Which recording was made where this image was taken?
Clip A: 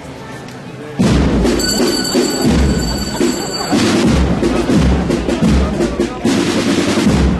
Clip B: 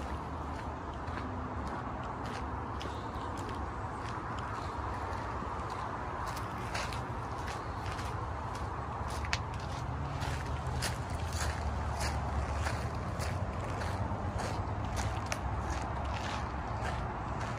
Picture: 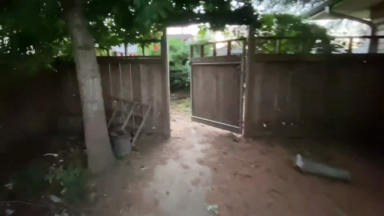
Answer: B